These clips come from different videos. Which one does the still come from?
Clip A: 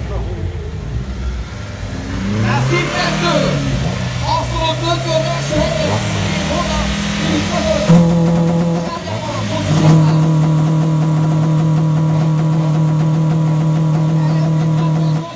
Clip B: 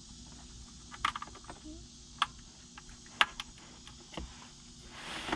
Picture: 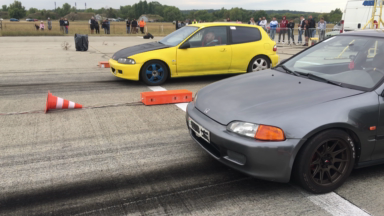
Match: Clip A